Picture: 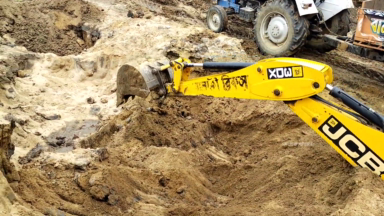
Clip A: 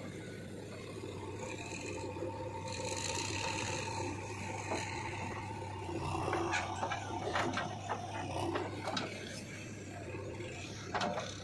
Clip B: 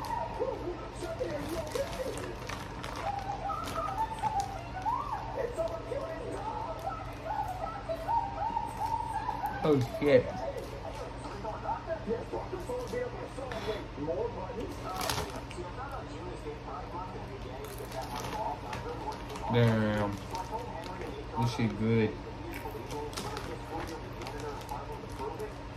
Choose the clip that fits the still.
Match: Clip A